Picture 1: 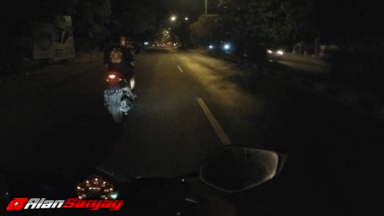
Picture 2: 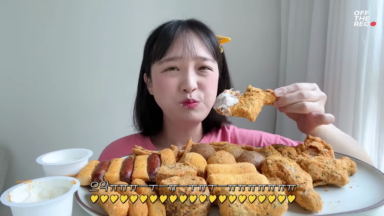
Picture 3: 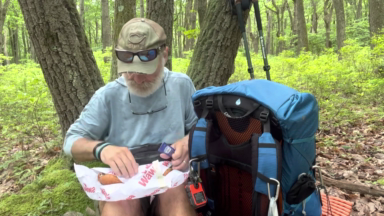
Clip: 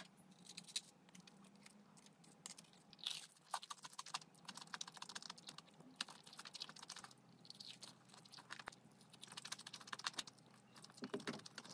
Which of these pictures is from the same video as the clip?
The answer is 2